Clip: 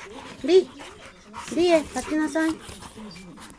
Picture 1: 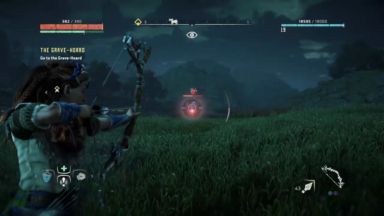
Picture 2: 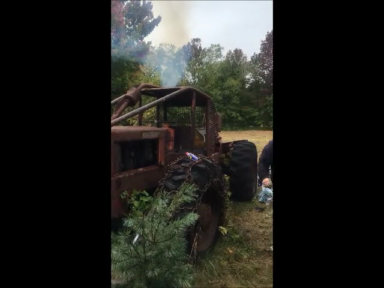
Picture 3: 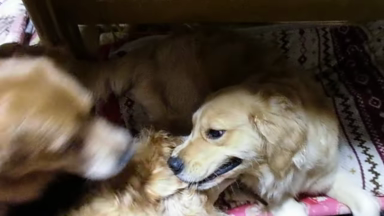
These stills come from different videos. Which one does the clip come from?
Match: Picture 3